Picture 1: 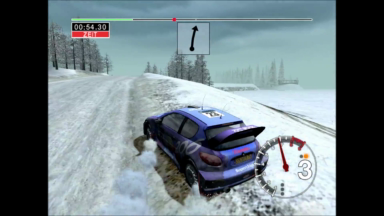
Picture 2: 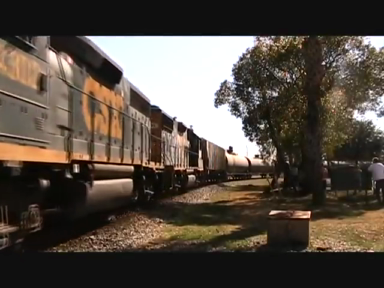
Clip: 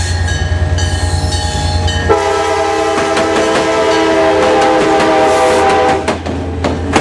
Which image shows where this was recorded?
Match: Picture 2